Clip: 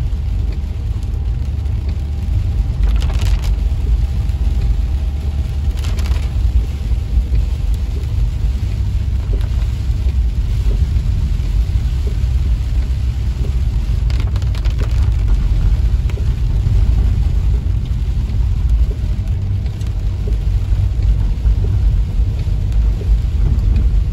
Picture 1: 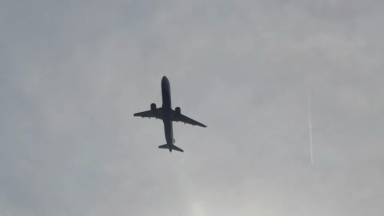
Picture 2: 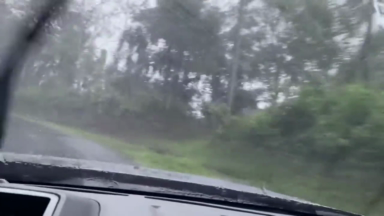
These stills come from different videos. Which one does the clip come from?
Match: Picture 2